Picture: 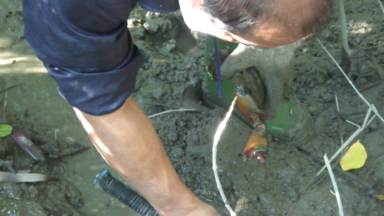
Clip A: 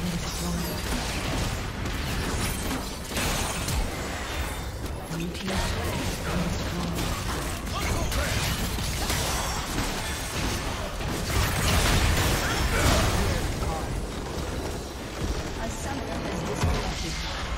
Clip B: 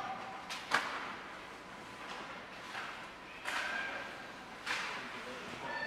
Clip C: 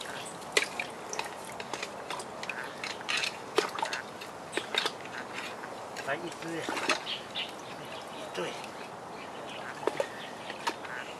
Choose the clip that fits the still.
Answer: C